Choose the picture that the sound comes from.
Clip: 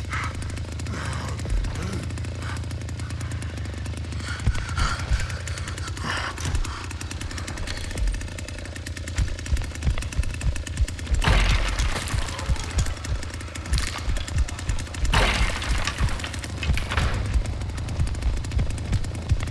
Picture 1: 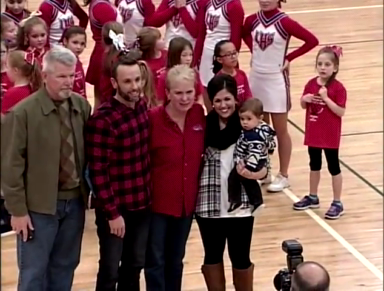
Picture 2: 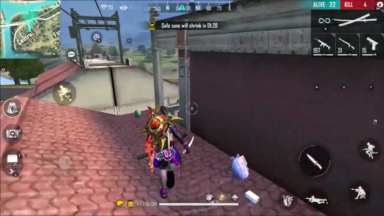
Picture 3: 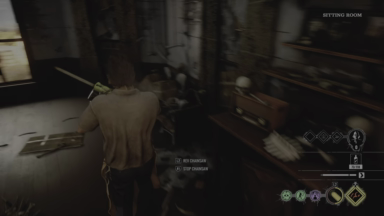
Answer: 3